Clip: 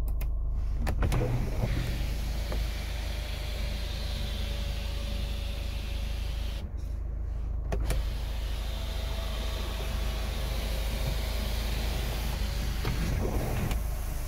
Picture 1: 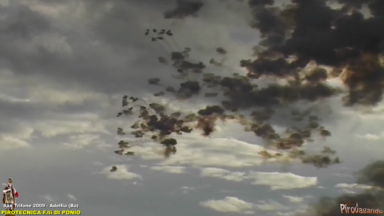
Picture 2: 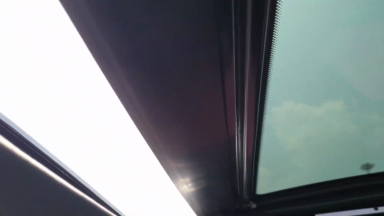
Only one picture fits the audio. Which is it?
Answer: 2